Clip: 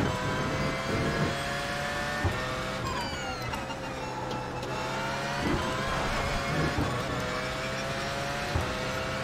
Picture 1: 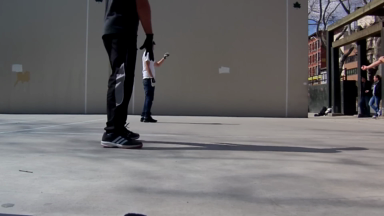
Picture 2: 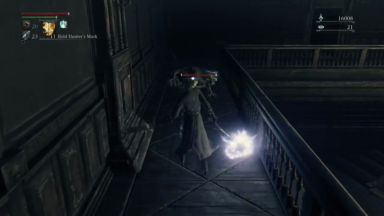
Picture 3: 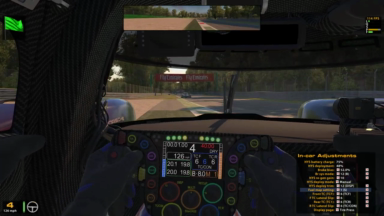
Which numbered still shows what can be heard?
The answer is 3